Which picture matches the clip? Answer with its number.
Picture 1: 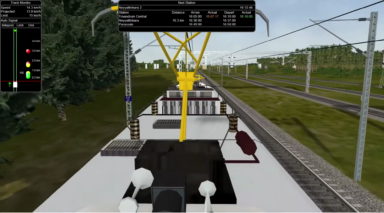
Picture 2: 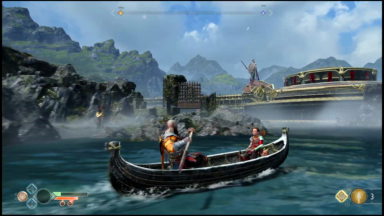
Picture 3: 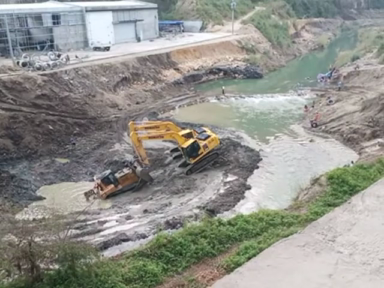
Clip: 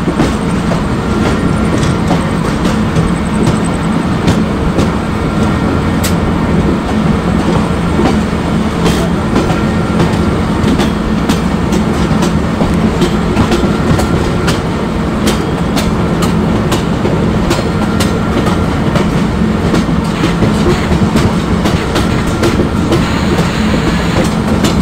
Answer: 1